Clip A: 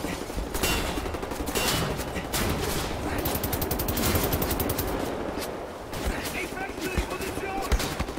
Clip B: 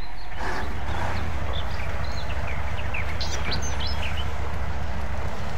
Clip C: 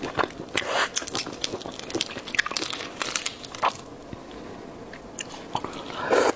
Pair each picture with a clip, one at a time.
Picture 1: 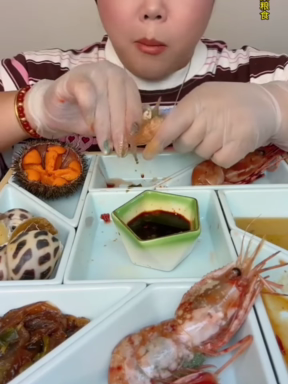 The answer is C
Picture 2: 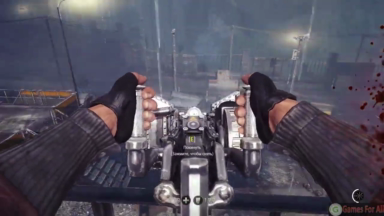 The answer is A